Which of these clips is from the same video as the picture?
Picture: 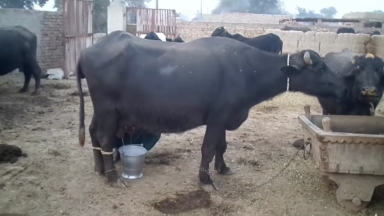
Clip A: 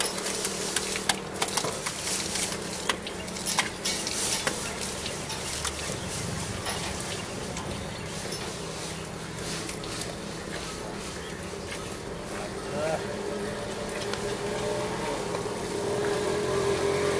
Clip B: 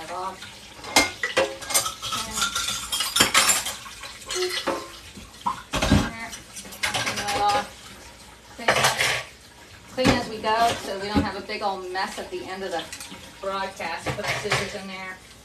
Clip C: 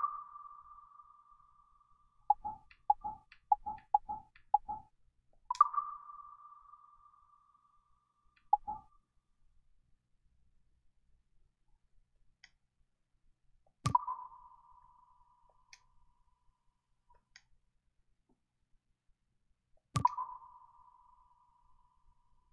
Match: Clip A